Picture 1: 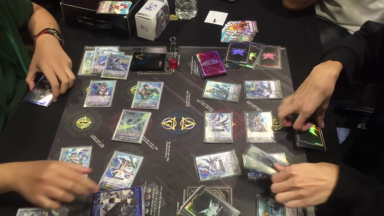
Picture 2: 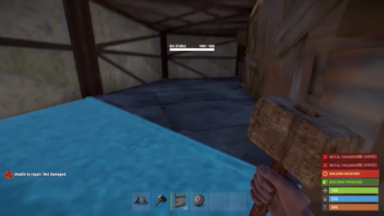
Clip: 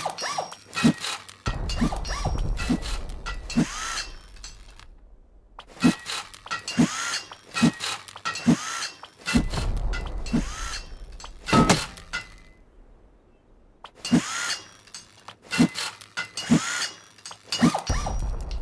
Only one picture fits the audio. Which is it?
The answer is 2